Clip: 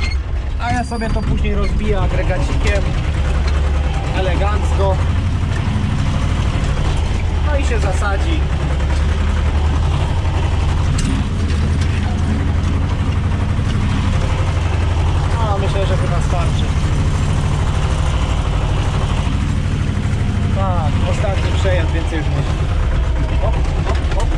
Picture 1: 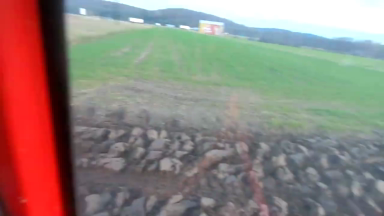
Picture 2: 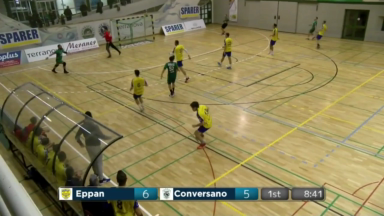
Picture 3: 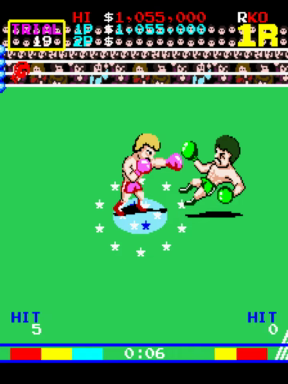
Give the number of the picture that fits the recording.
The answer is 1